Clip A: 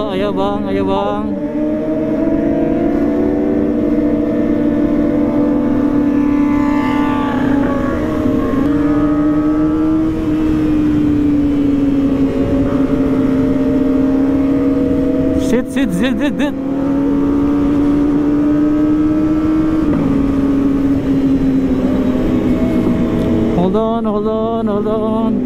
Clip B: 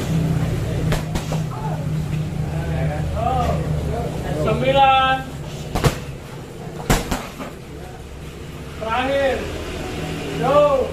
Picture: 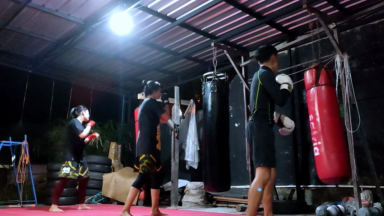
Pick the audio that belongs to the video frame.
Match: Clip B